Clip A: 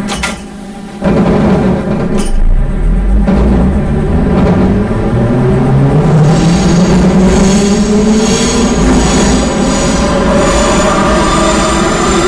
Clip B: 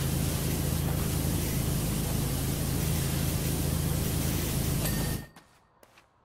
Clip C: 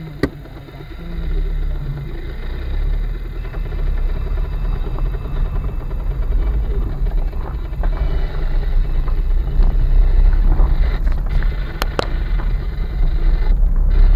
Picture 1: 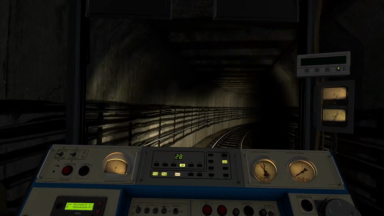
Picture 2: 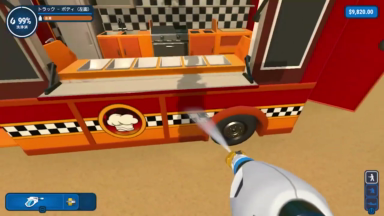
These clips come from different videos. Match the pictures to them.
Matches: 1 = A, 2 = B